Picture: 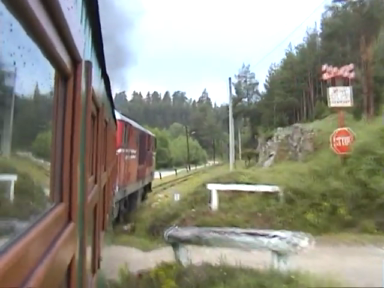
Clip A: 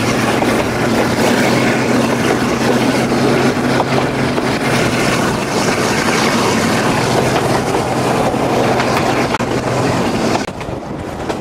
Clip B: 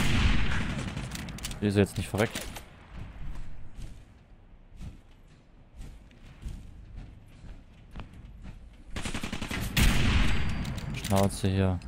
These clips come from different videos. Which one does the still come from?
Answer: A